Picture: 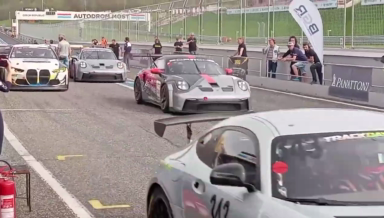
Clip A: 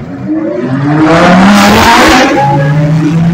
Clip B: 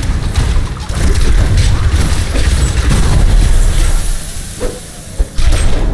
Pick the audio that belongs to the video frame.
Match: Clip A